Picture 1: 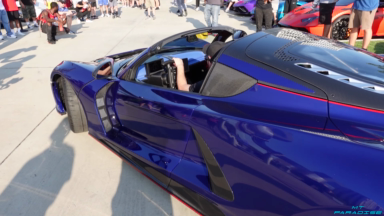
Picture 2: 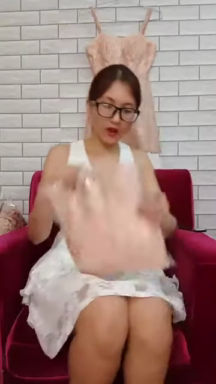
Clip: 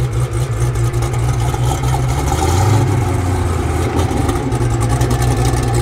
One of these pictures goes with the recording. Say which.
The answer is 1